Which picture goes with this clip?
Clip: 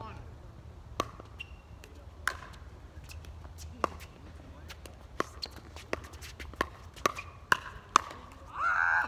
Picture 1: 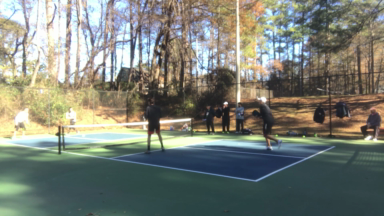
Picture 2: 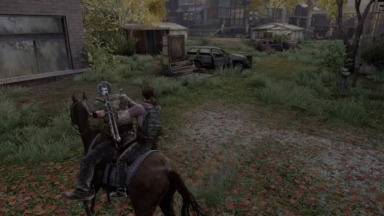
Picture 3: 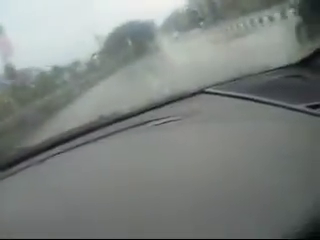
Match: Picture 1